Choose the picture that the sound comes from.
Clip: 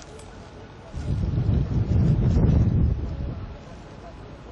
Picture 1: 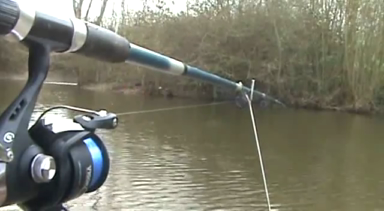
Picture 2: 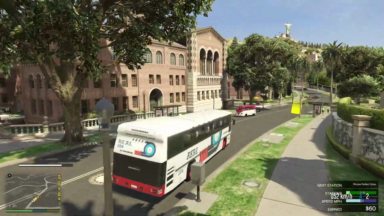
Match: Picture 1